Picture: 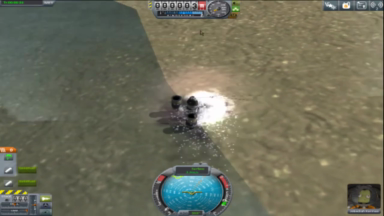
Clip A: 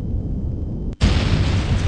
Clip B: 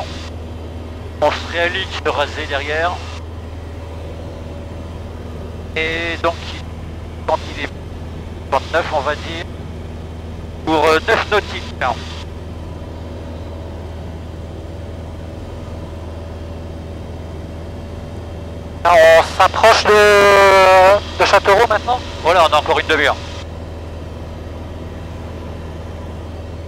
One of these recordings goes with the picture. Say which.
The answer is A